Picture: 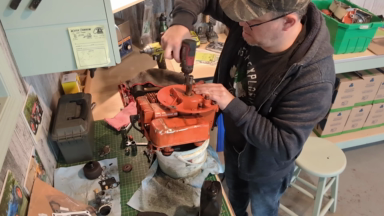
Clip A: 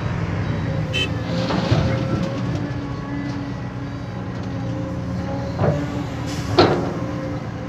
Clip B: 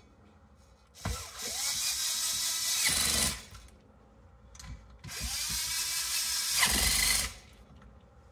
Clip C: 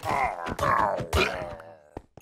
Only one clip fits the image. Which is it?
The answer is B